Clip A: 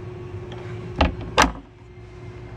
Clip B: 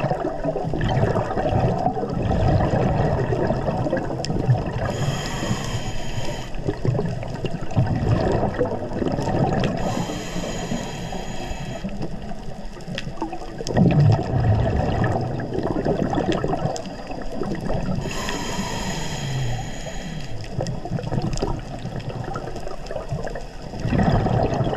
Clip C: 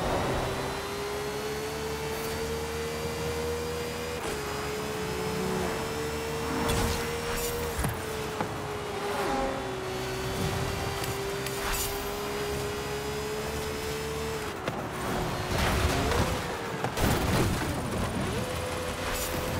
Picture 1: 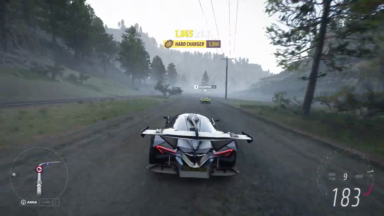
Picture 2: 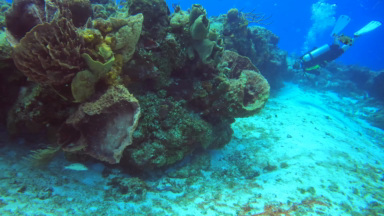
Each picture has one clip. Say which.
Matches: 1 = C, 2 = B